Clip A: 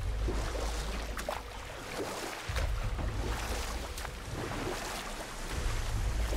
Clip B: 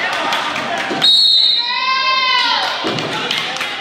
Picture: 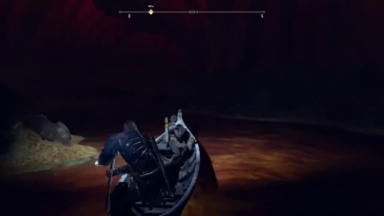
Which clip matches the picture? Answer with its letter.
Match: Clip A